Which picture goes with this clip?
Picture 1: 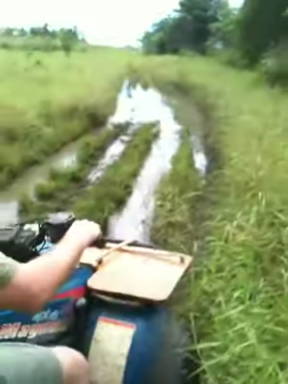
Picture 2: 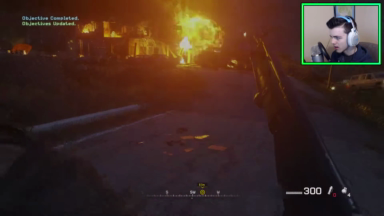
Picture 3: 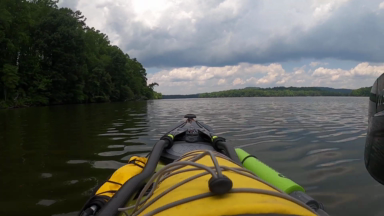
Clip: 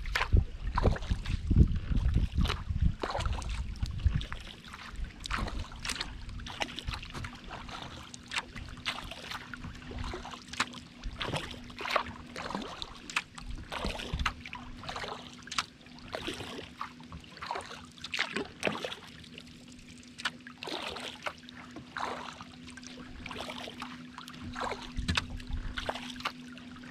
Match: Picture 3